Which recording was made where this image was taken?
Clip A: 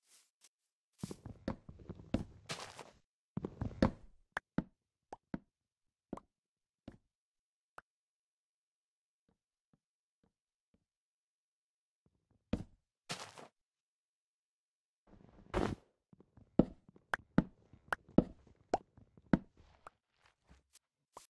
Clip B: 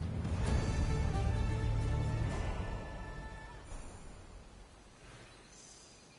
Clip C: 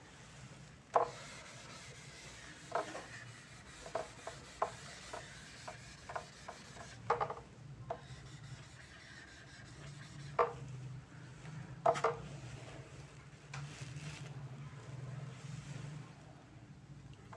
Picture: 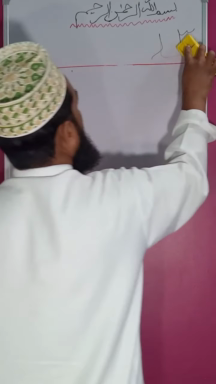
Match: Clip C